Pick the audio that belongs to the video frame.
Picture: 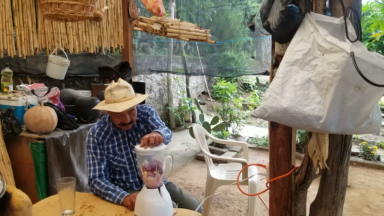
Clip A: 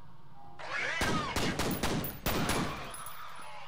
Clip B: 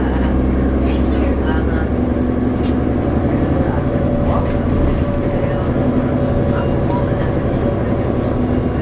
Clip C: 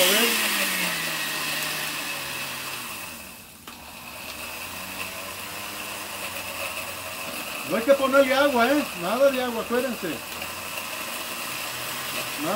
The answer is C